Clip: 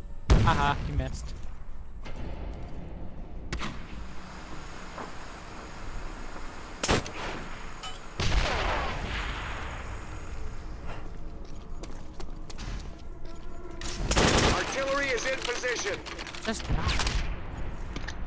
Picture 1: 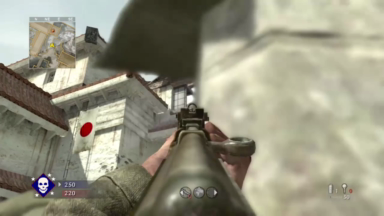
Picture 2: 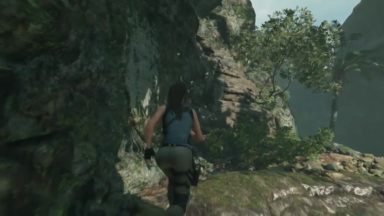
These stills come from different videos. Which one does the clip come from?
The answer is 1